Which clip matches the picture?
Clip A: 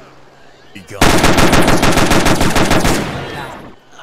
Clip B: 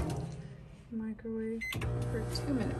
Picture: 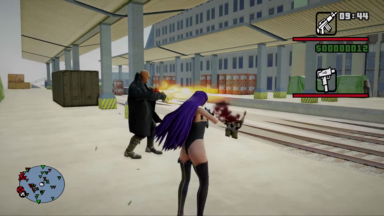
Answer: A